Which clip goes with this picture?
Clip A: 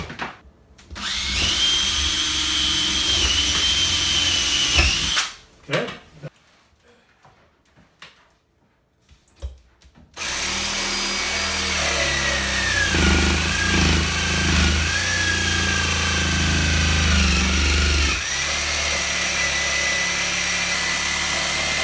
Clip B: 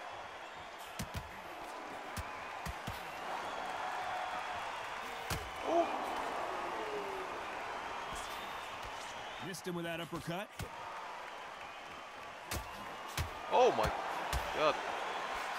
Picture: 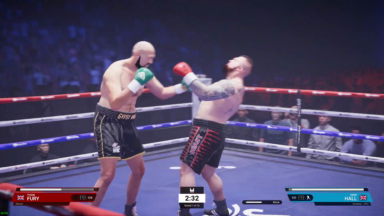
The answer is B